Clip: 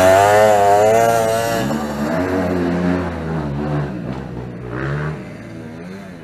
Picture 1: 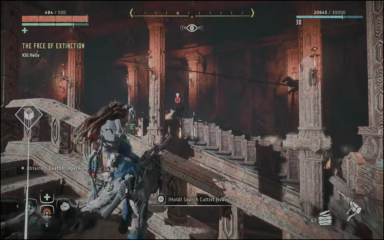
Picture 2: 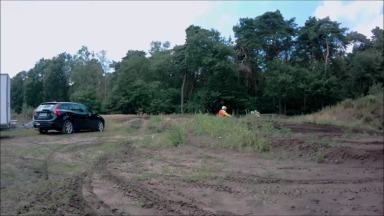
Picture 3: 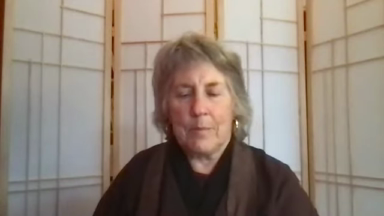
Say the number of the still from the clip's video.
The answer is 2